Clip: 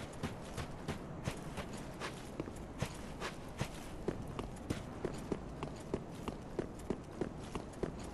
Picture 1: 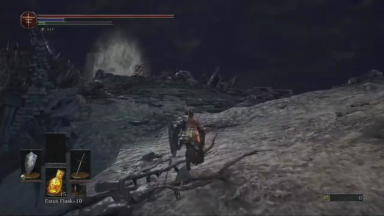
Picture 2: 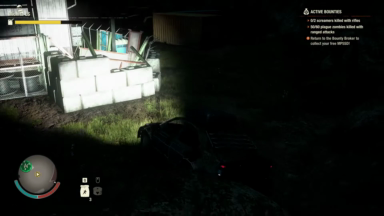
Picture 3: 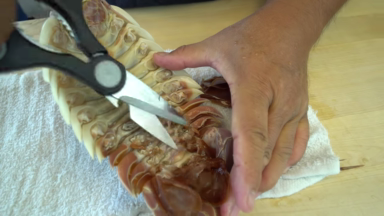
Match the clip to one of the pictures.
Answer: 1